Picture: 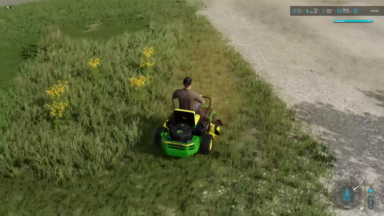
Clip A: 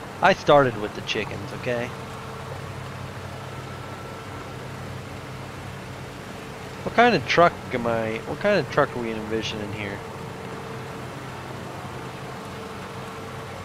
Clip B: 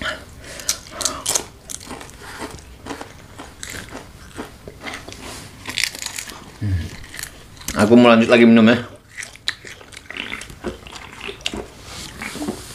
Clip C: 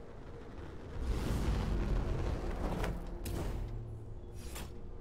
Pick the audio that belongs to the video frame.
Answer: A